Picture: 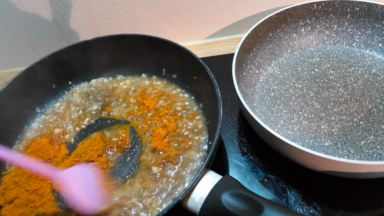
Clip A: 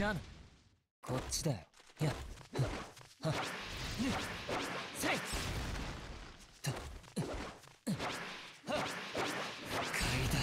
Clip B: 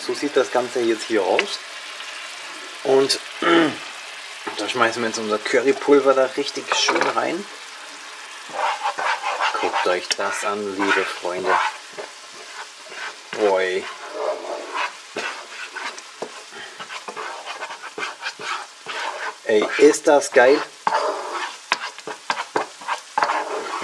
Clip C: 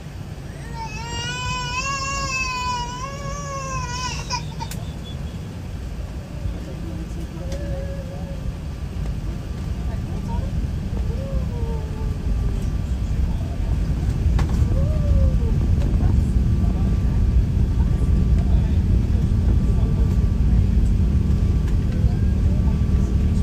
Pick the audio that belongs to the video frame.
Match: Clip B